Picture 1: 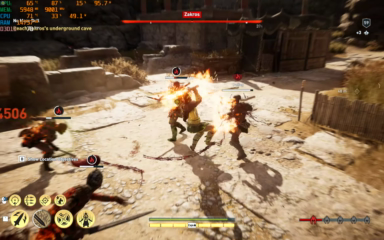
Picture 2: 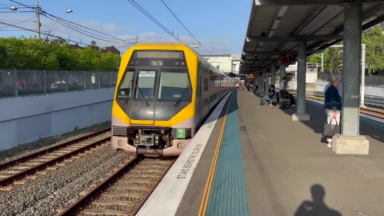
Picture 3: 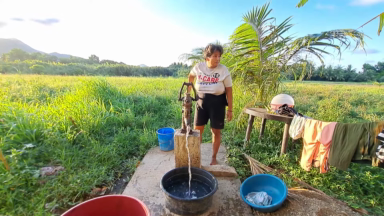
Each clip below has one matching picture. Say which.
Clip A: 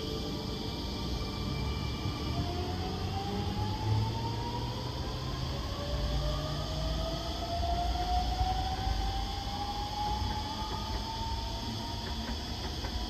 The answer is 2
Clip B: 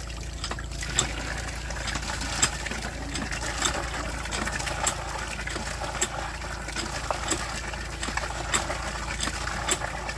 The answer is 3